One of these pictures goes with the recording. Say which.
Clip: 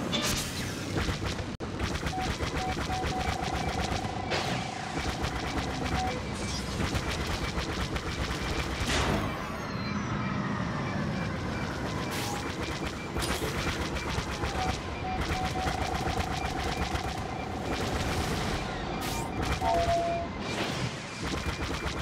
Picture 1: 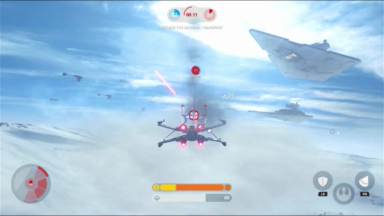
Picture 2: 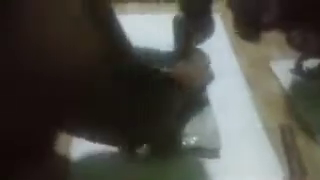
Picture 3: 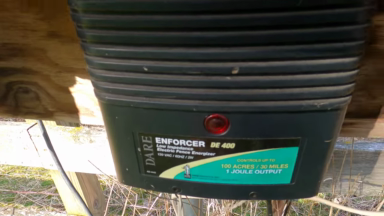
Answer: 1